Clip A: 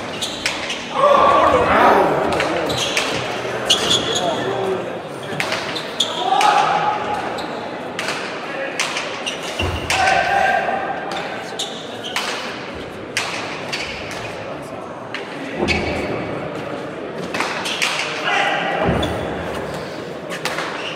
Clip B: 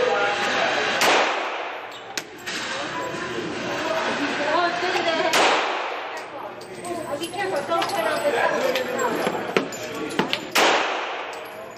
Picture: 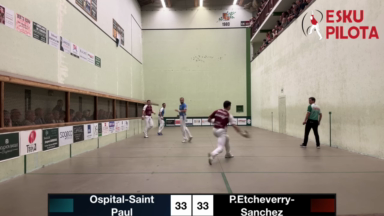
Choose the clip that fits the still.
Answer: A